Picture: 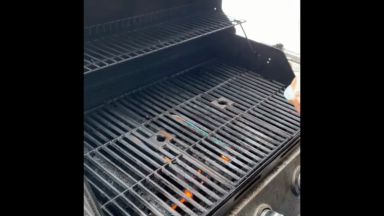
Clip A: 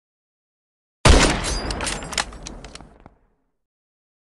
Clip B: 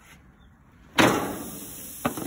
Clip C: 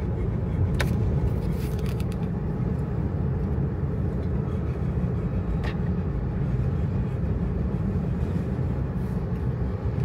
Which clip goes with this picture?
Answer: B